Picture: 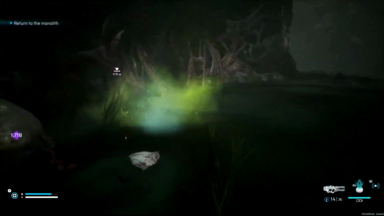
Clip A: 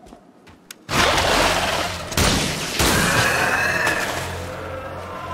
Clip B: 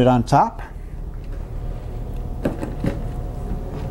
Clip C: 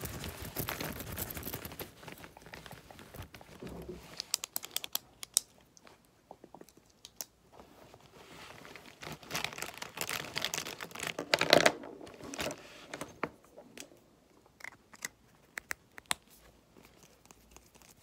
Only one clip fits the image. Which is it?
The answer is A